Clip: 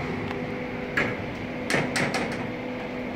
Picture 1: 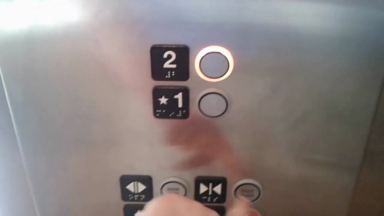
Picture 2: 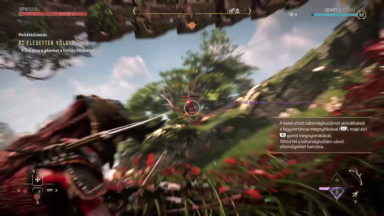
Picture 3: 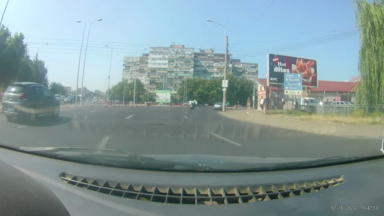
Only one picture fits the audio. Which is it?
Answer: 1